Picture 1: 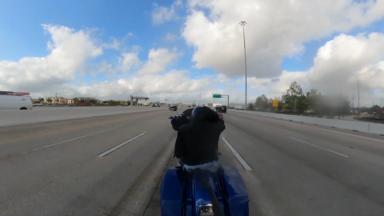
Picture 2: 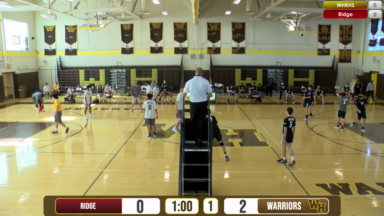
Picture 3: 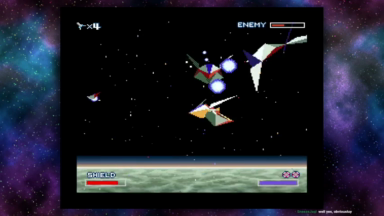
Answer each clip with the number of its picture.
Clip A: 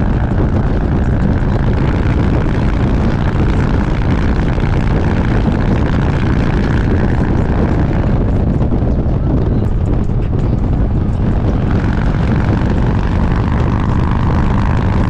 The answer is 1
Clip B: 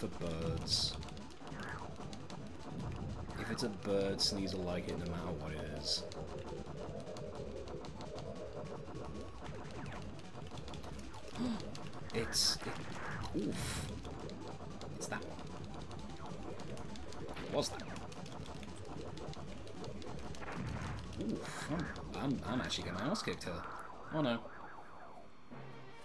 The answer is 3